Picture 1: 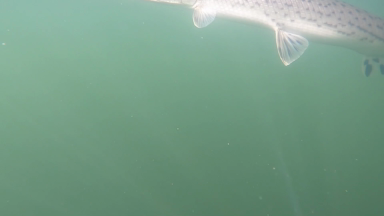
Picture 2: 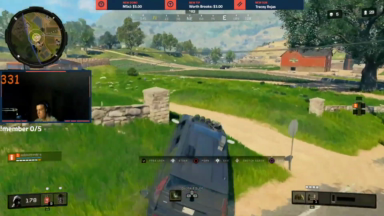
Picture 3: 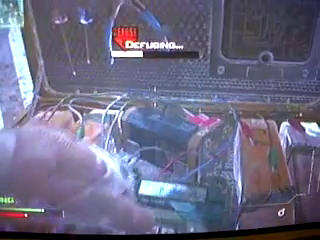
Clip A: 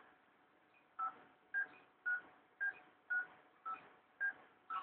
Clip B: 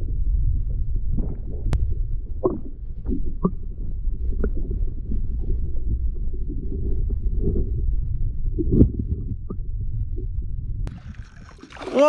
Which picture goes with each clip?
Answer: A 3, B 1